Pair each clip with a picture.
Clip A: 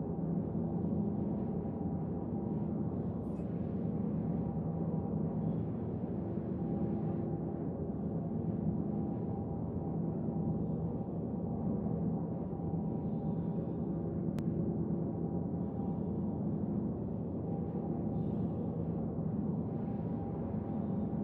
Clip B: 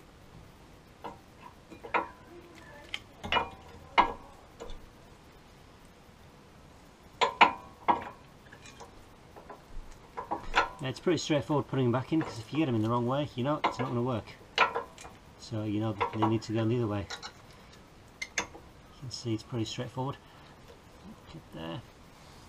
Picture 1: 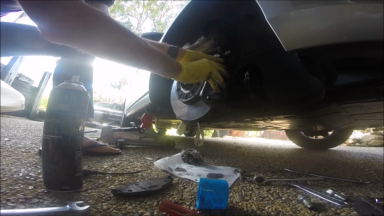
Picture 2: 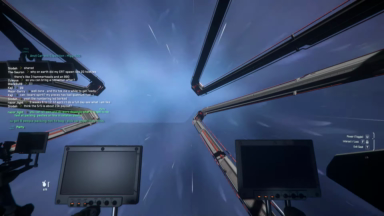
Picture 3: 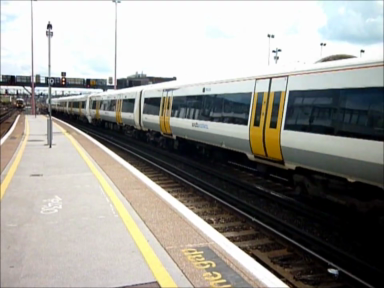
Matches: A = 2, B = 1